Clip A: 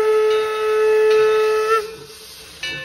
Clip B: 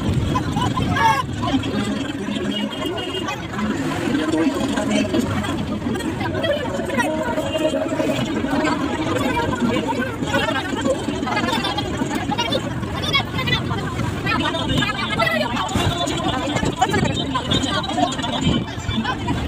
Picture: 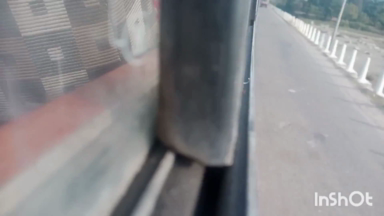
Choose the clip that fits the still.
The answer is B